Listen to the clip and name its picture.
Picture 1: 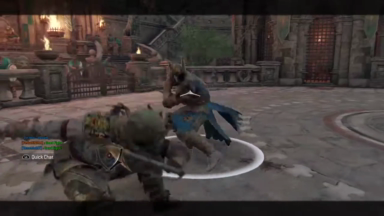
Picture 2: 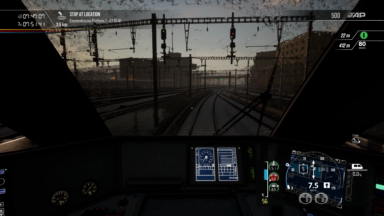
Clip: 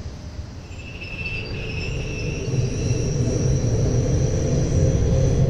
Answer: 2